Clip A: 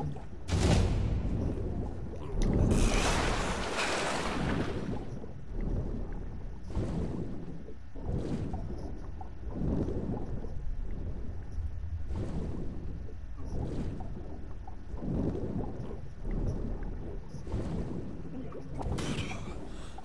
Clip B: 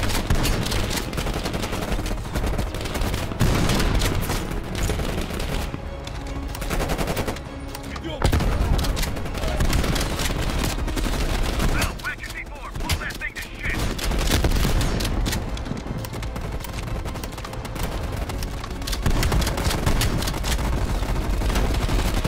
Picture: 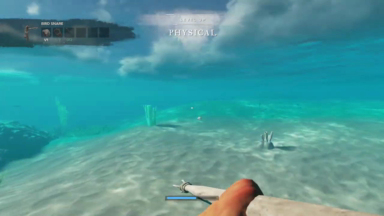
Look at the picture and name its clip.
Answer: A